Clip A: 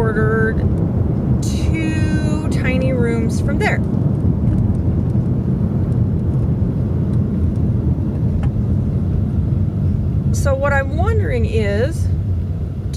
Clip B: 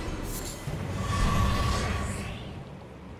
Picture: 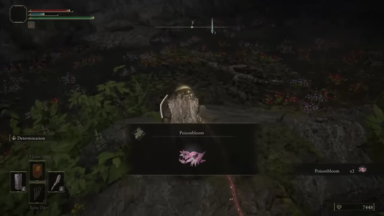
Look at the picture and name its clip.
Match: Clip B